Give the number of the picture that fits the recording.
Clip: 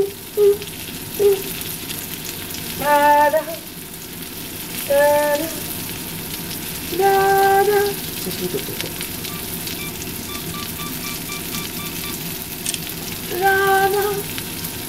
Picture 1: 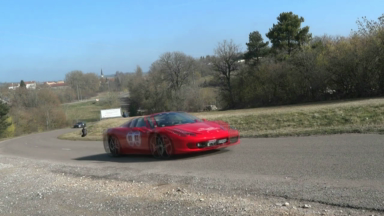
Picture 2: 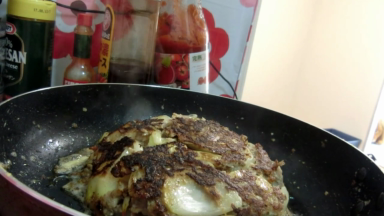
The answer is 2